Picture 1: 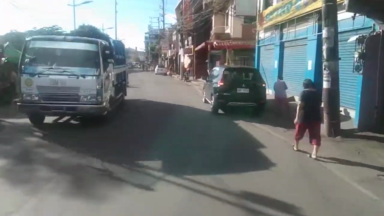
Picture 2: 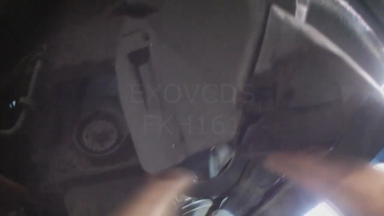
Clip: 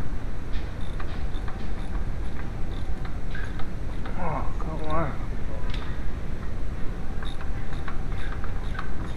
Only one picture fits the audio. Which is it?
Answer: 2